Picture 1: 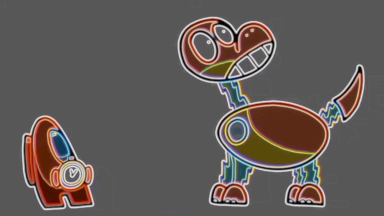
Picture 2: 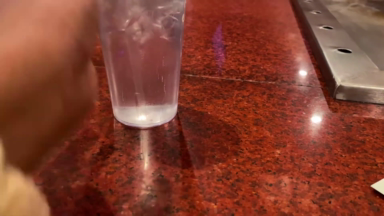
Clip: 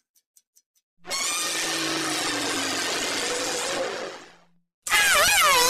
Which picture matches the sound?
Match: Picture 1